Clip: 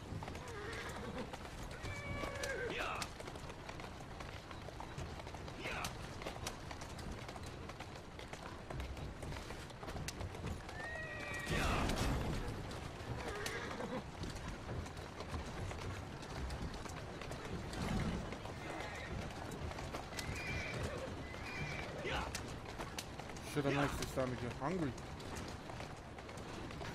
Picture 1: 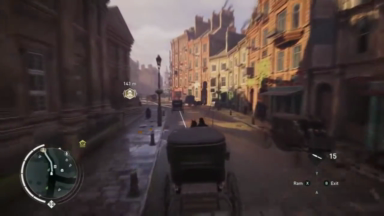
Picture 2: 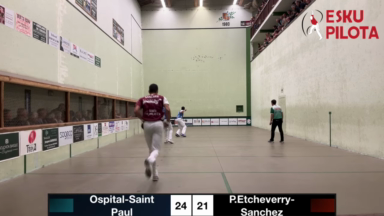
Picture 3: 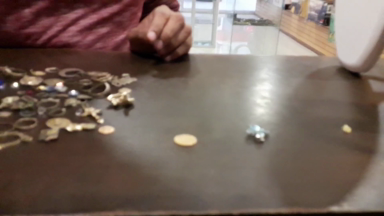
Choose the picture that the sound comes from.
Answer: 1